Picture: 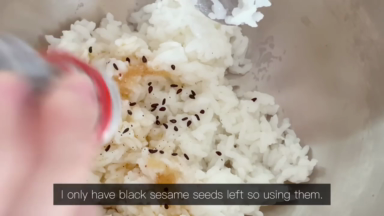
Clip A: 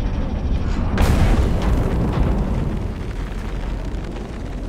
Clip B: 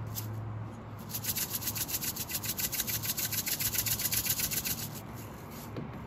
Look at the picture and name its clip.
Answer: B